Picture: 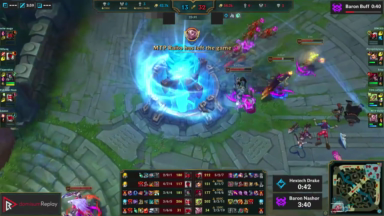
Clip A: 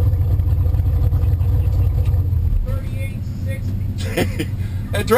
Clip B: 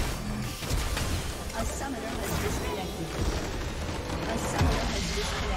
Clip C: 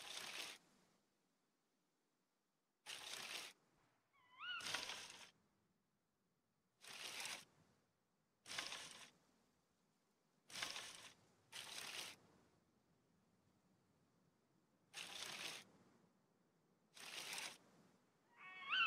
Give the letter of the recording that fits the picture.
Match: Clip B